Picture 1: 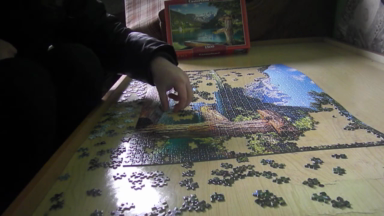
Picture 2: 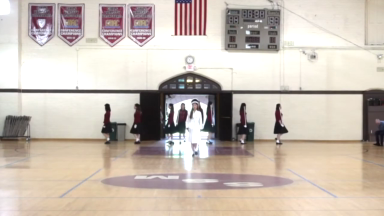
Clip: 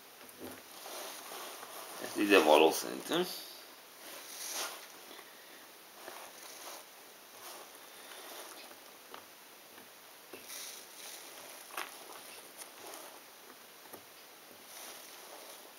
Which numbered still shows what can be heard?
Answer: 1